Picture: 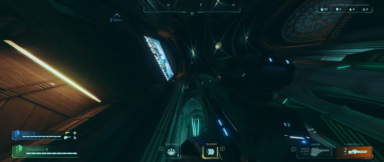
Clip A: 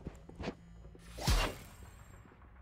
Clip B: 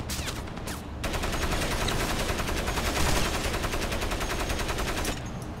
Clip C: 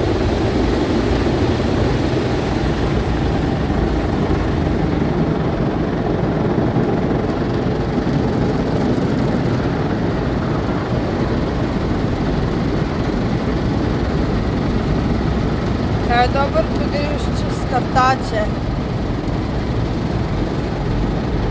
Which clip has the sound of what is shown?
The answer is A